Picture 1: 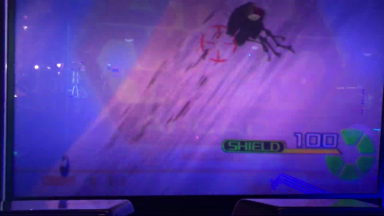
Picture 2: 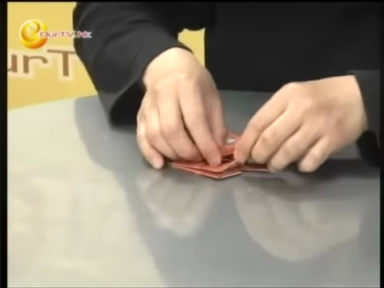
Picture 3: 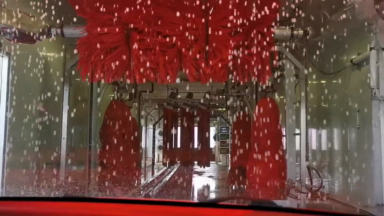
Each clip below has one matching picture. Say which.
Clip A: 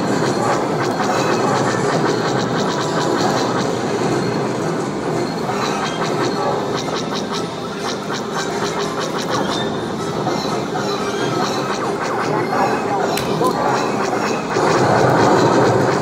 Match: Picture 1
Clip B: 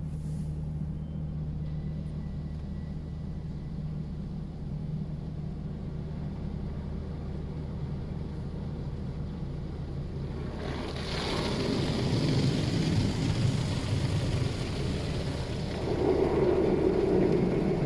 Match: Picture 3